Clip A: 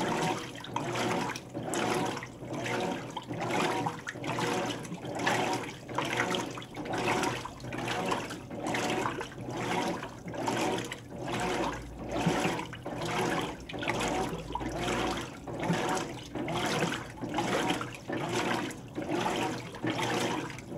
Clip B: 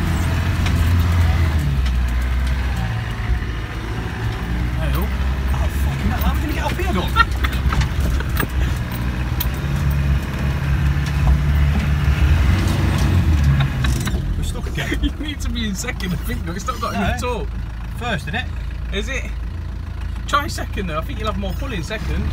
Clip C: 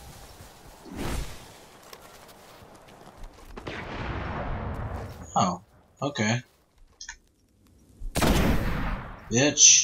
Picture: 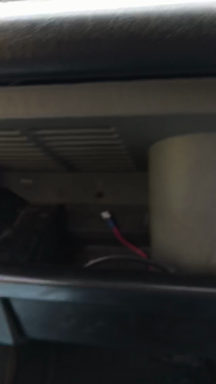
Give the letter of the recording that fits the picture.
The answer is B